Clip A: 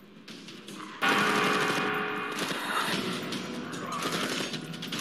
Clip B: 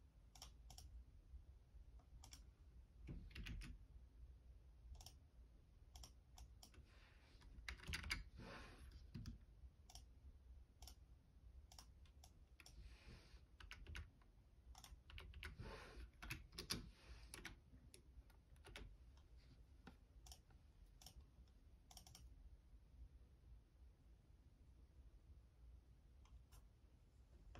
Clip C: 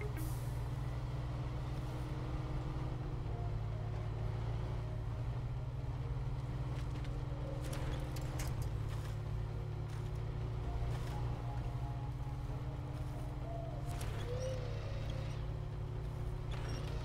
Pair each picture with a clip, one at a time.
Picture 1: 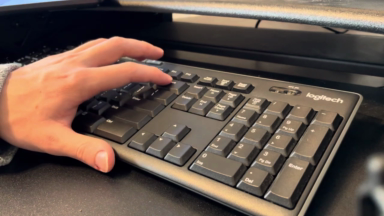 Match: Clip B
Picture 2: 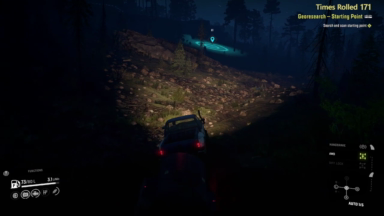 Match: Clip C